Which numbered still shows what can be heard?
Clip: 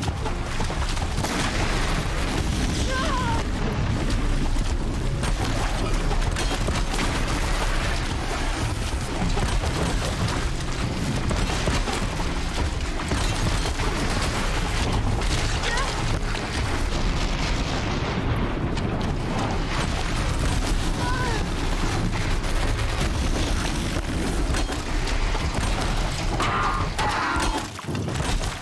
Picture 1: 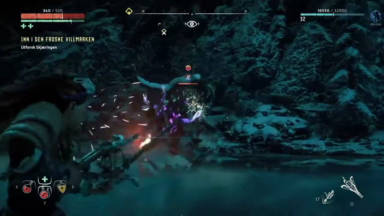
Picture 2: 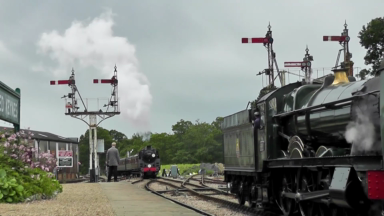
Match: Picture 1